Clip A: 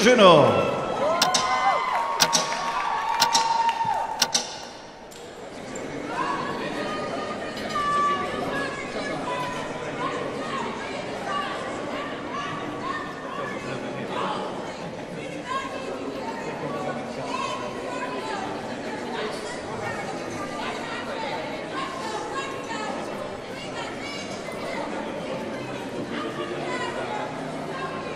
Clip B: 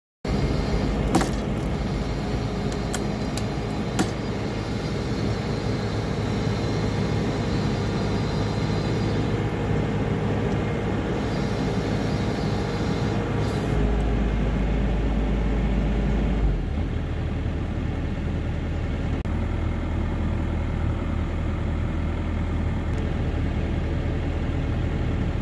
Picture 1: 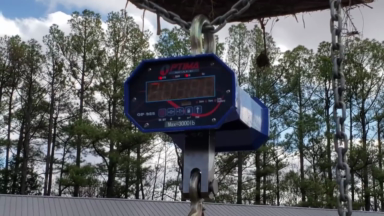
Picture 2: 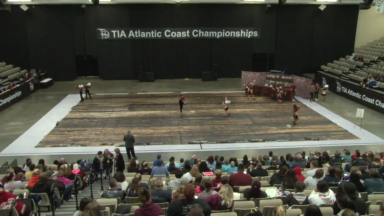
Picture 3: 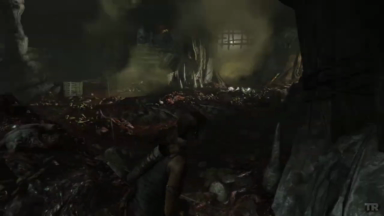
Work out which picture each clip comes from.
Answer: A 2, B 1